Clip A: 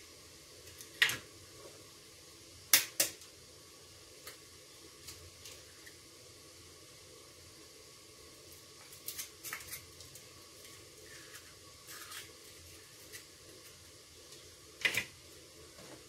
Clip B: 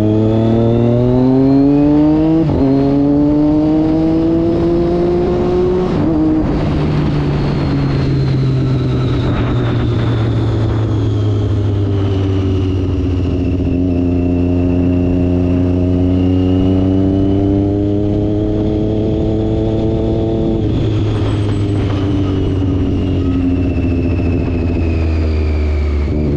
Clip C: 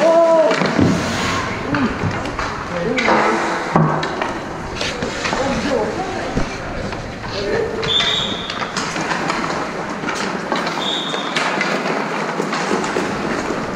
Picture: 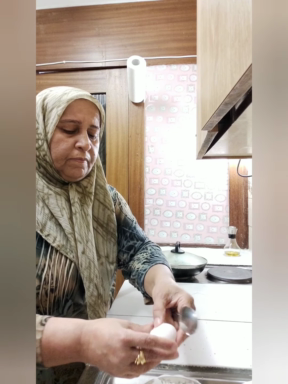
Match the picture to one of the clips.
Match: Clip A